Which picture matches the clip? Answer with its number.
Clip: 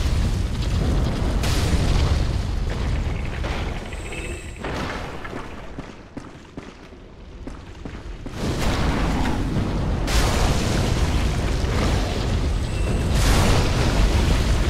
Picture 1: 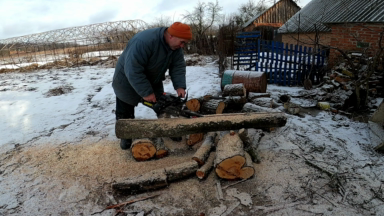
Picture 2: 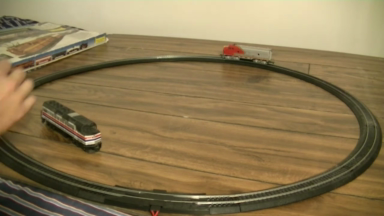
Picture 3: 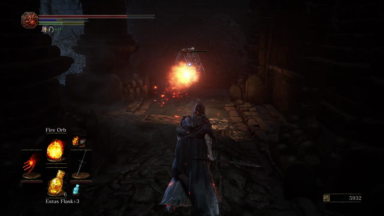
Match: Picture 3